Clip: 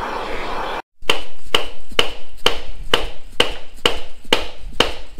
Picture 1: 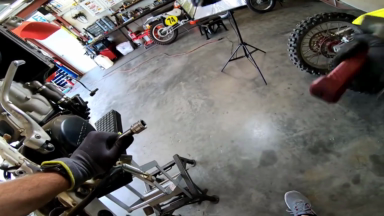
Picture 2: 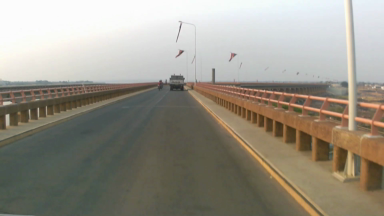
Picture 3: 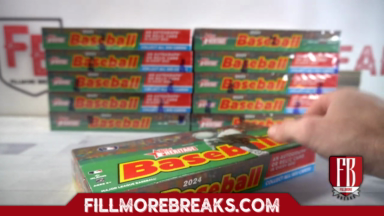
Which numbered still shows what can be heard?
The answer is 1